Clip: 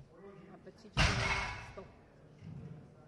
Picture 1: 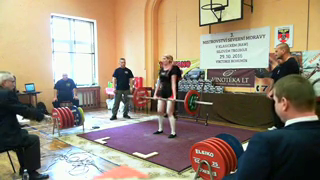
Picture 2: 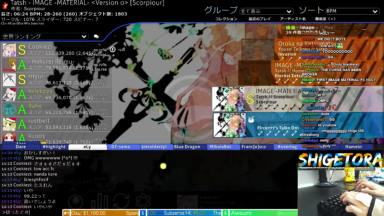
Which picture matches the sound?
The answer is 1